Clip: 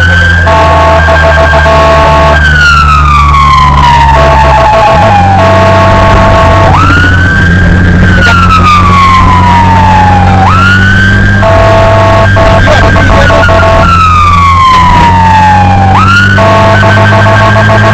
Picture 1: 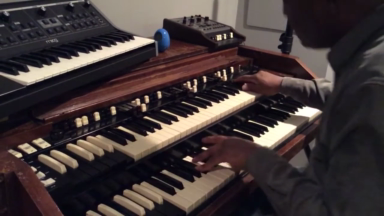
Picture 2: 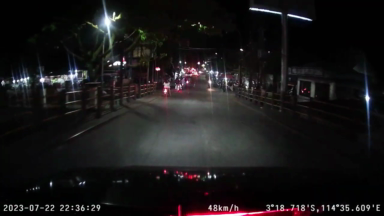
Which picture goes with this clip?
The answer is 2